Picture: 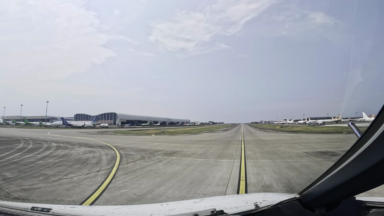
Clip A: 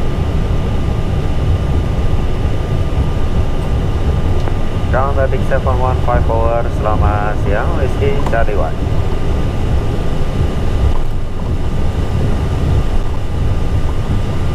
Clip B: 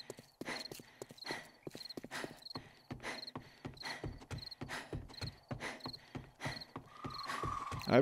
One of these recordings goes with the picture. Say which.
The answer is A